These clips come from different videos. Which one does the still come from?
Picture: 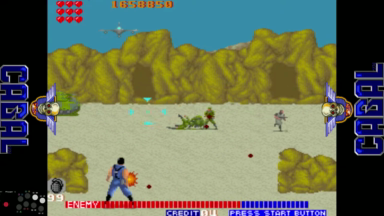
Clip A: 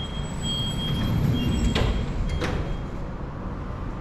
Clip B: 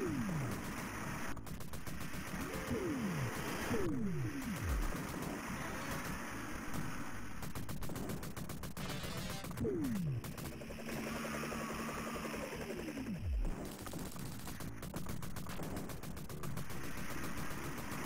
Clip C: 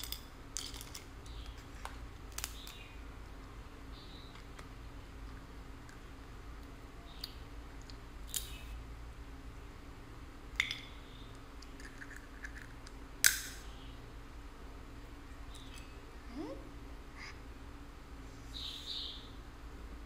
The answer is B